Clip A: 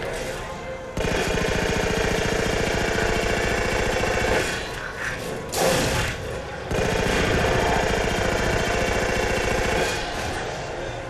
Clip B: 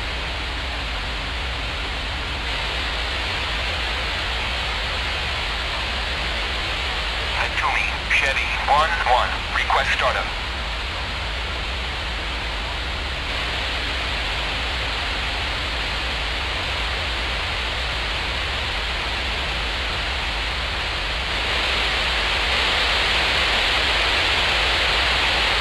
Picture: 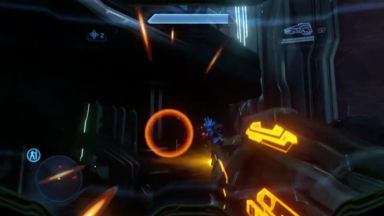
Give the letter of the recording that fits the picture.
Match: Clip A